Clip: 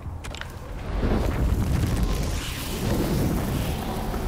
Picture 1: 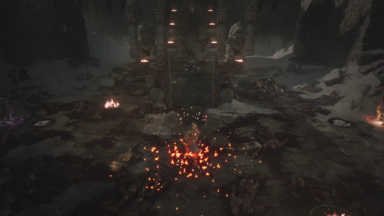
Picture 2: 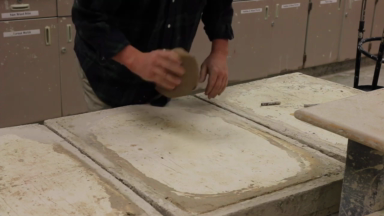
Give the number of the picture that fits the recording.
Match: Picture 1